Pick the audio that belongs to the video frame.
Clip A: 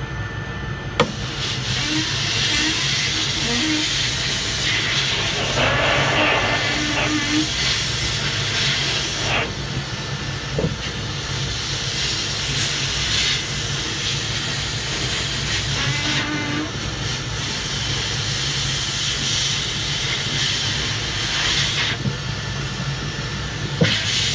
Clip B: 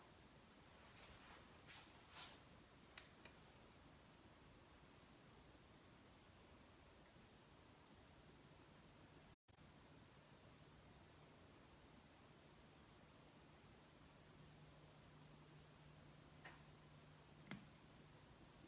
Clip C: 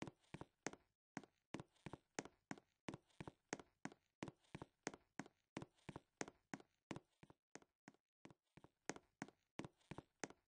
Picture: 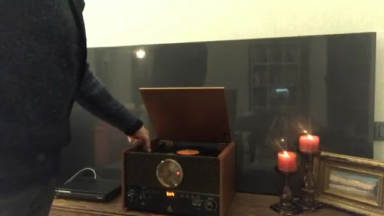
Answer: B